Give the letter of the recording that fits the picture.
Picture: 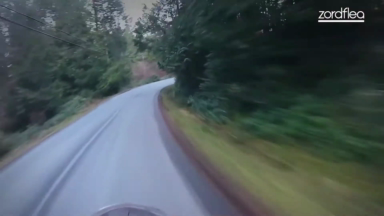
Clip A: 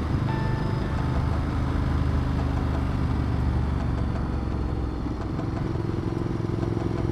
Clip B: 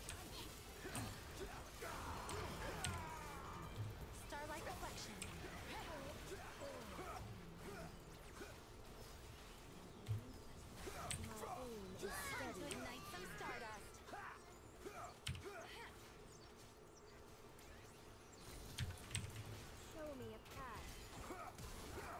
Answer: A